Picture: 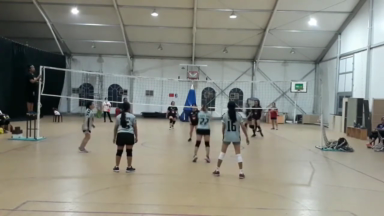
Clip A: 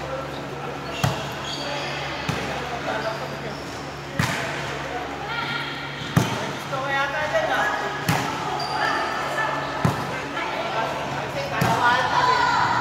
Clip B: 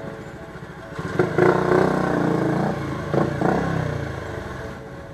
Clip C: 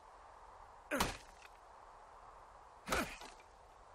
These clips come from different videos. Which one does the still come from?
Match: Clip A